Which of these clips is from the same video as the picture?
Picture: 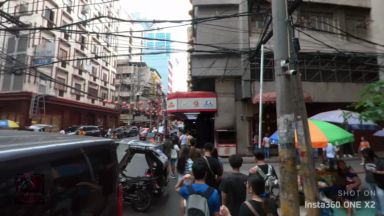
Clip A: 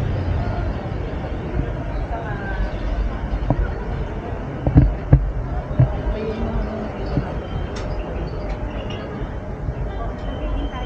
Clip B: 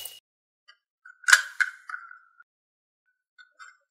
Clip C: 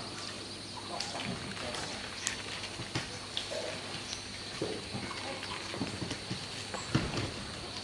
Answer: A